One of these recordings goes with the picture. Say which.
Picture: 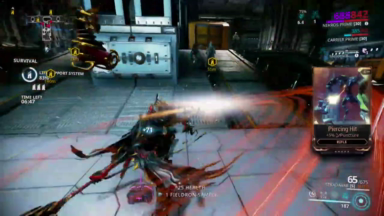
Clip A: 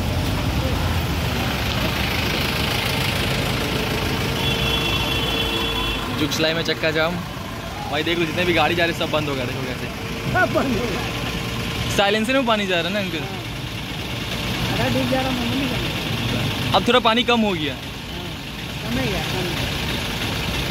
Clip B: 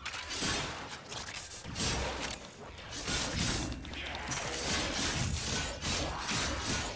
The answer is B